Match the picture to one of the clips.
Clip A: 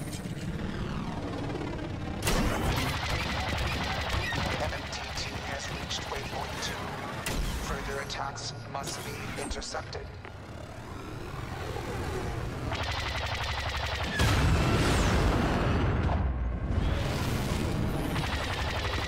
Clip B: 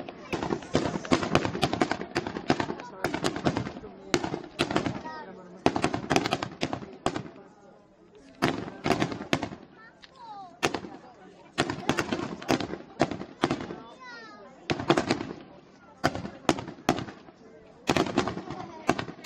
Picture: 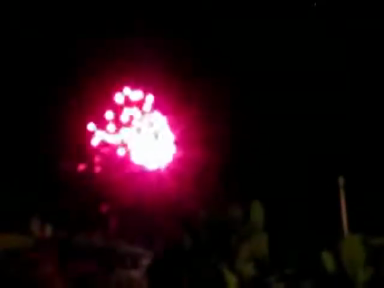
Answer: B